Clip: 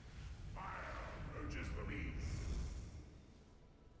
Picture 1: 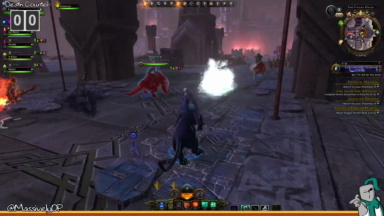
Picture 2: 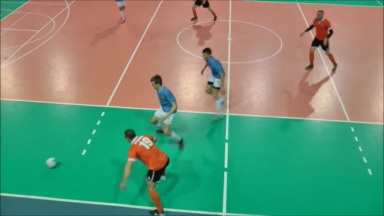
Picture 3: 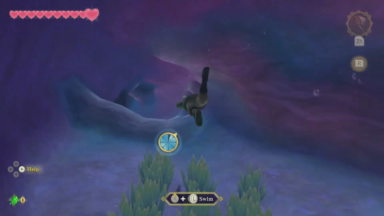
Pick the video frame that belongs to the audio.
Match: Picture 1